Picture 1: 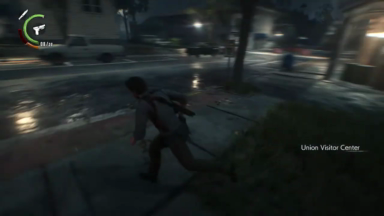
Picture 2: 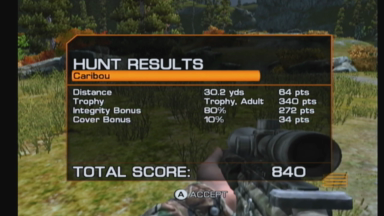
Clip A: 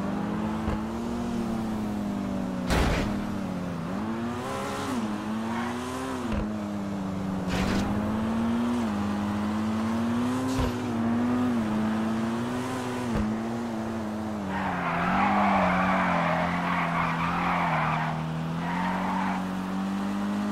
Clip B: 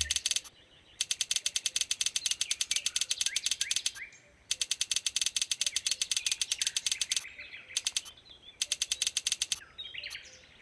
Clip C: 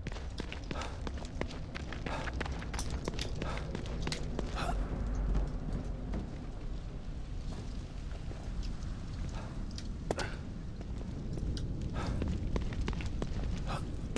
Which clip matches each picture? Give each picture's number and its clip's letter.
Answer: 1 C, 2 B